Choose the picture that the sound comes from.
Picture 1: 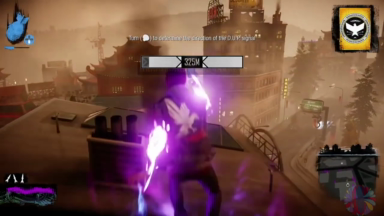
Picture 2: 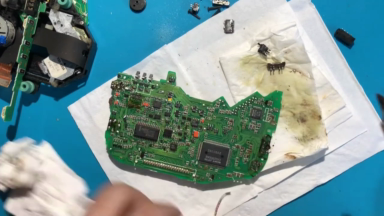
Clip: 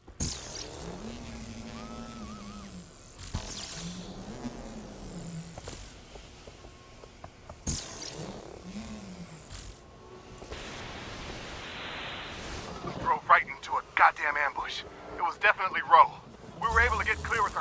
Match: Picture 1